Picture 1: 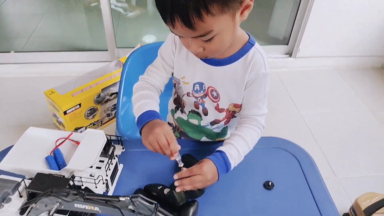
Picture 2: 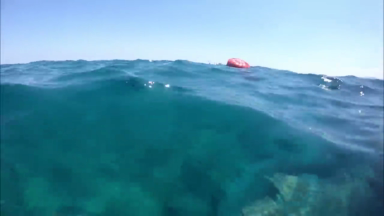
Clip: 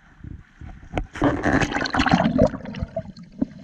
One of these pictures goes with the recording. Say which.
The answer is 2